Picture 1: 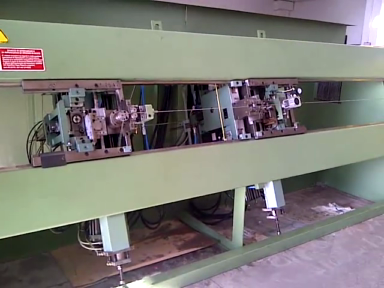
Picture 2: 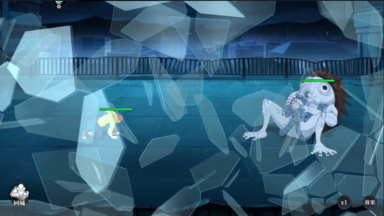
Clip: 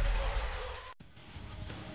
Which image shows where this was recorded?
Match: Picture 2